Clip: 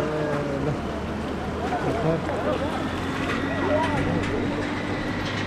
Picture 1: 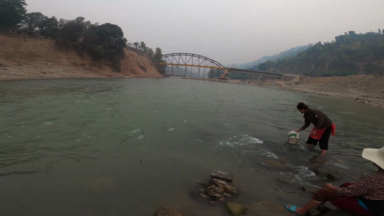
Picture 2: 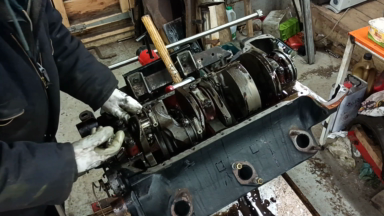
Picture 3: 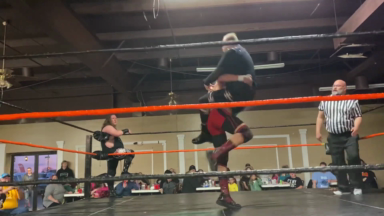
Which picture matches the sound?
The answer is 1